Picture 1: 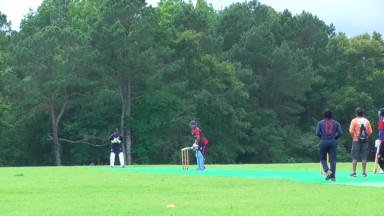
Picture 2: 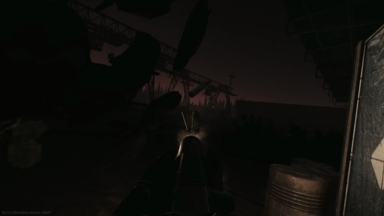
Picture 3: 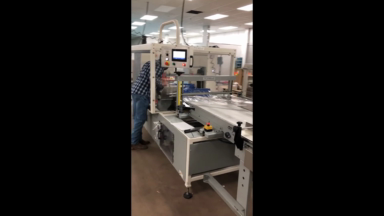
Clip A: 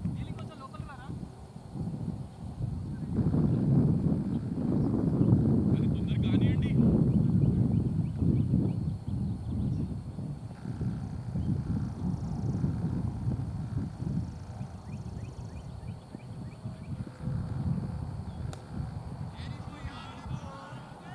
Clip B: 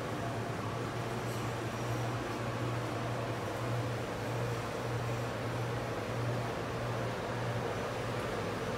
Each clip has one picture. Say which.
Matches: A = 1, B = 3